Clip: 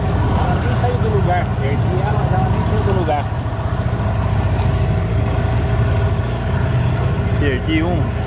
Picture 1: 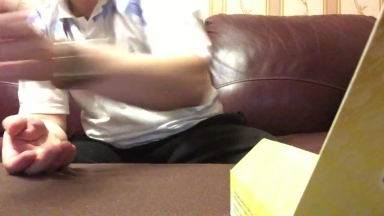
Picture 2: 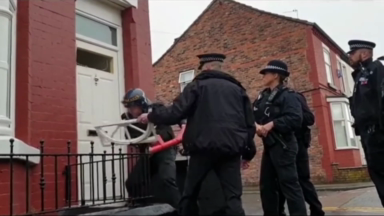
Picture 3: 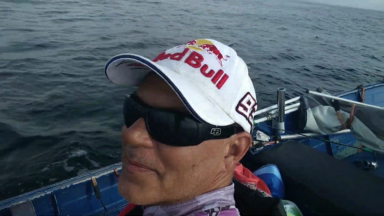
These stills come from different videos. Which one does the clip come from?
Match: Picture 3